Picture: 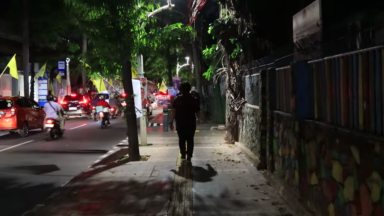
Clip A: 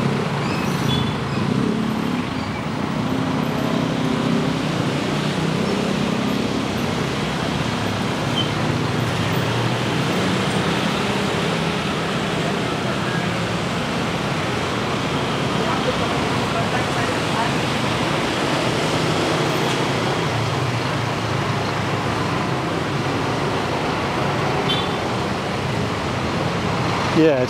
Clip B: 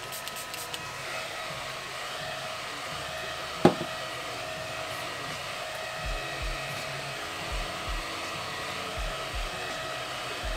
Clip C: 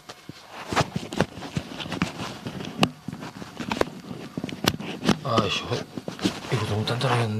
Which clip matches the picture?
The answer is A